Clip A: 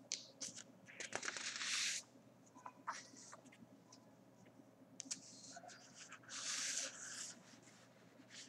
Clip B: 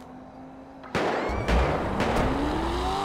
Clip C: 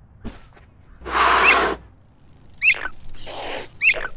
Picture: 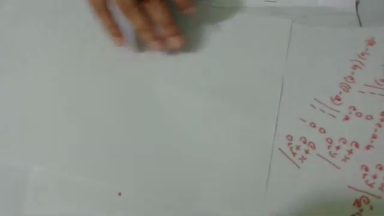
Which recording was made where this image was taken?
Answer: A